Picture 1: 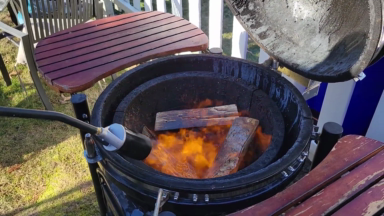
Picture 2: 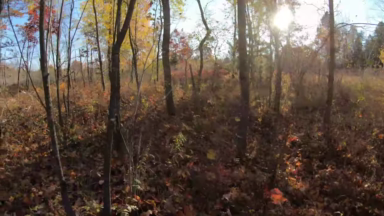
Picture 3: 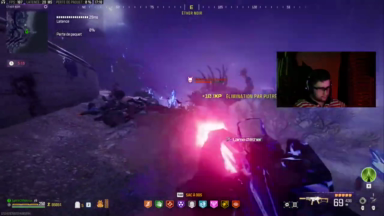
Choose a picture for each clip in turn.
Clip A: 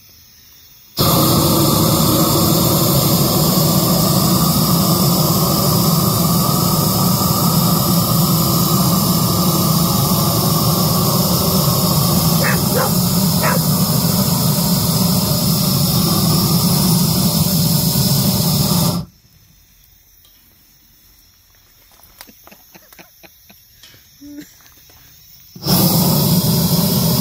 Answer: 1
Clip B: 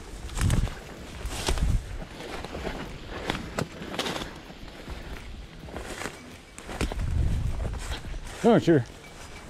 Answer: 2